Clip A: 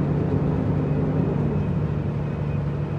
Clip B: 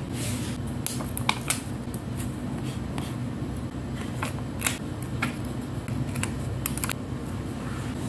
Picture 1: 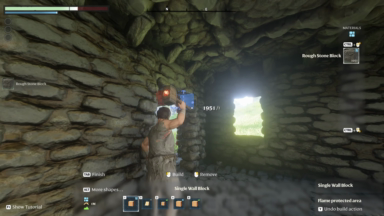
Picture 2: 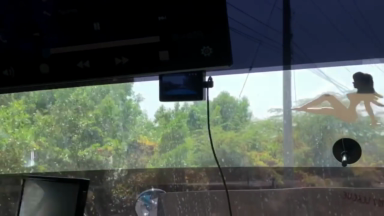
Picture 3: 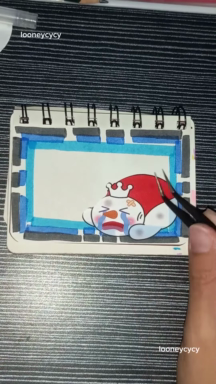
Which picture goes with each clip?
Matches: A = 2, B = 3